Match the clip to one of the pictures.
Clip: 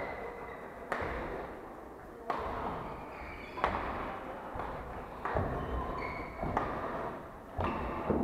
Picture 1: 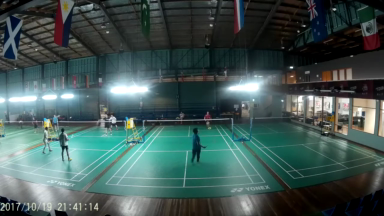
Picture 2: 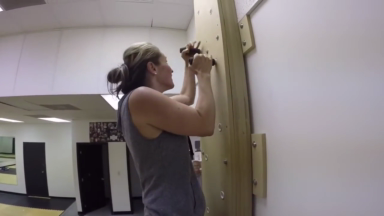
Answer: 1